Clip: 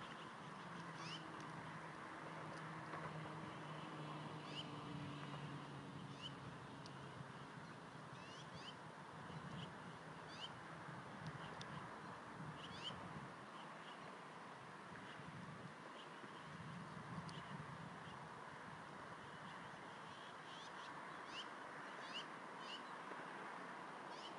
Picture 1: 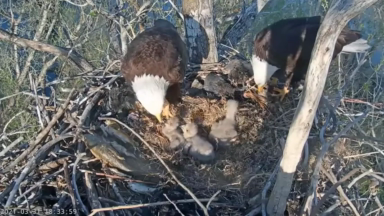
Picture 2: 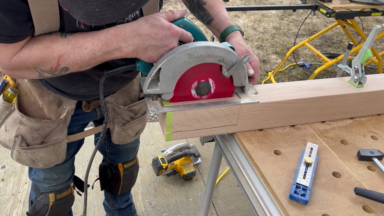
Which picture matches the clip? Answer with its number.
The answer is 1